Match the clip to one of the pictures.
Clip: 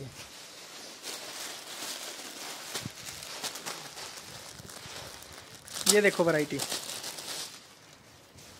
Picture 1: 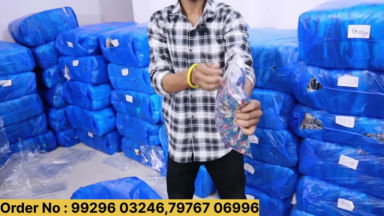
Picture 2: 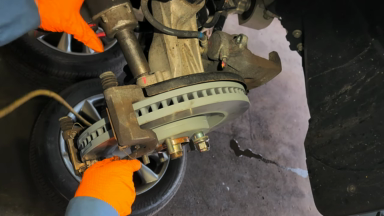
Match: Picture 1